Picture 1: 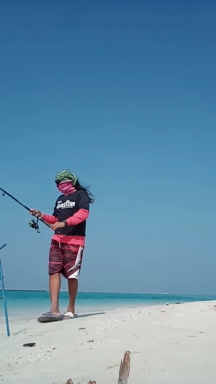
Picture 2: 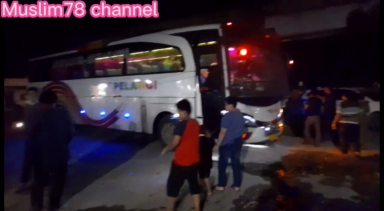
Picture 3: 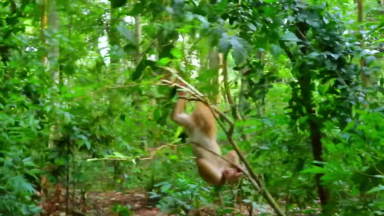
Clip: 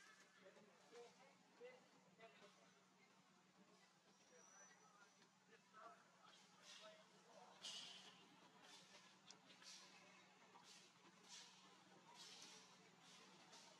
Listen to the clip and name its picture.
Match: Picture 3